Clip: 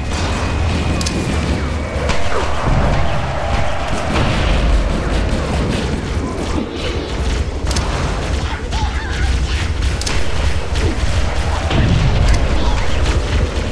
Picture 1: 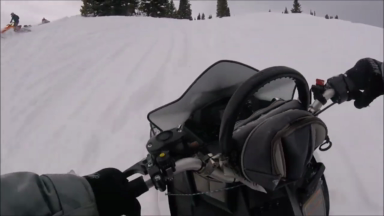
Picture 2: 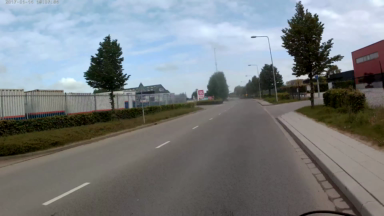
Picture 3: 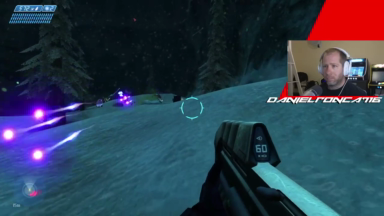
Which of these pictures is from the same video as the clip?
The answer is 3